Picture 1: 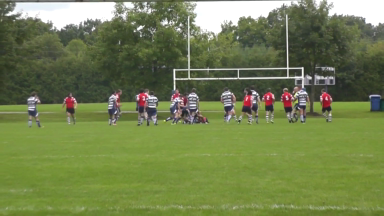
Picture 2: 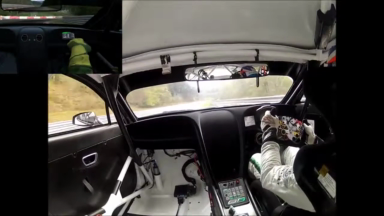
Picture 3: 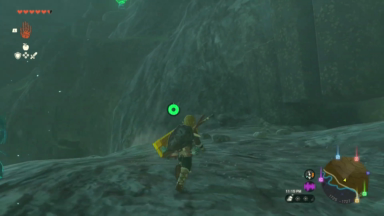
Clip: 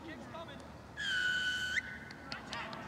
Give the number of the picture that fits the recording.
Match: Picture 1